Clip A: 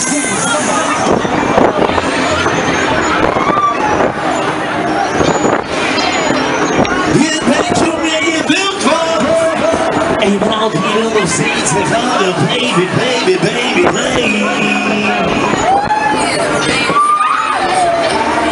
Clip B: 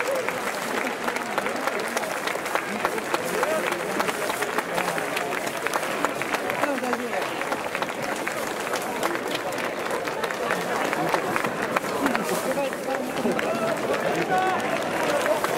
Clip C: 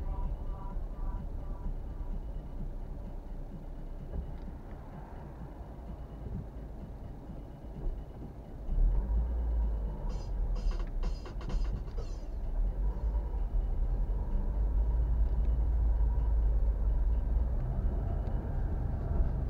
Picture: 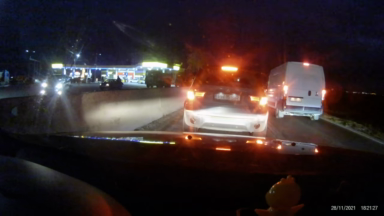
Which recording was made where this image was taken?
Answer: C